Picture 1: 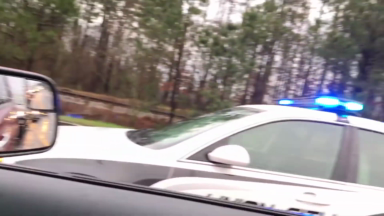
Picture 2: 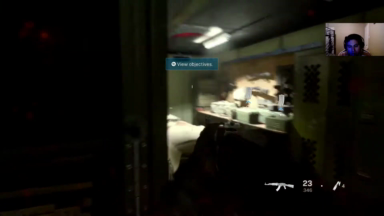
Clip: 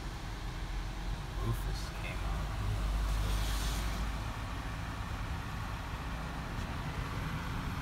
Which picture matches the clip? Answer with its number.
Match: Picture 1